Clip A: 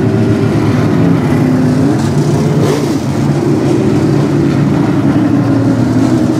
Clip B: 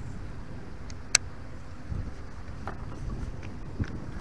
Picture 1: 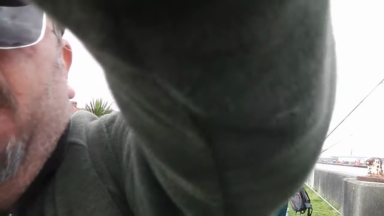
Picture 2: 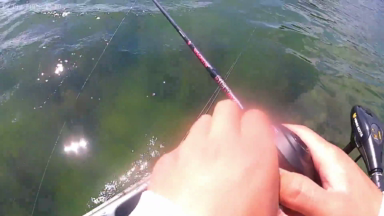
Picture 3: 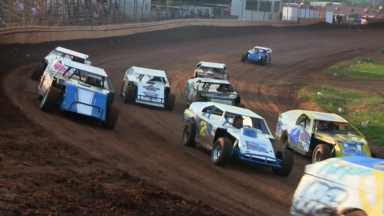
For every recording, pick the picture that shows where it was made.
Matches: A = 3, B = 2